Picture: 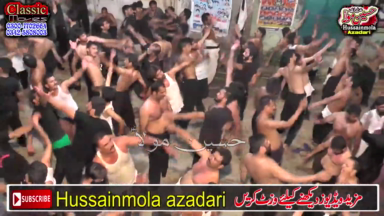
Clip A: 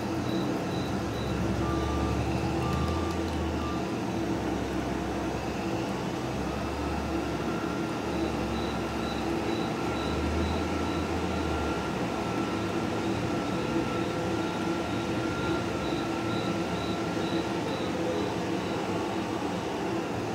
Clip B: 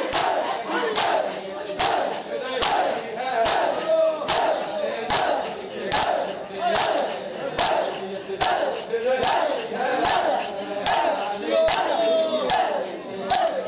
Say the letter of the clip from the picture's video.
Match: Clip B